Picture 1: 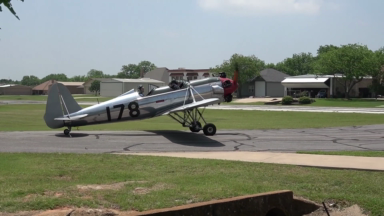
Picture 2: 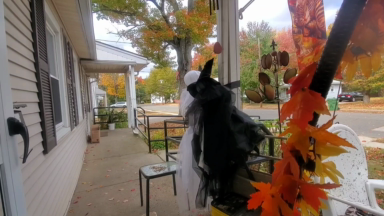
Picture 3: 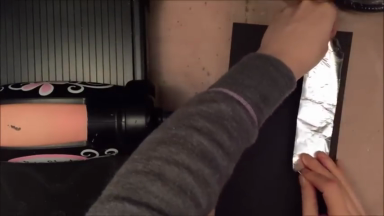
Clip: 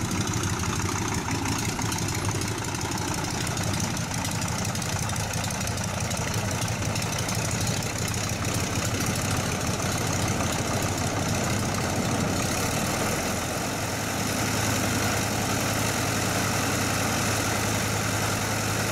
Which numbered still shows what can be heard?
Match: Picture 1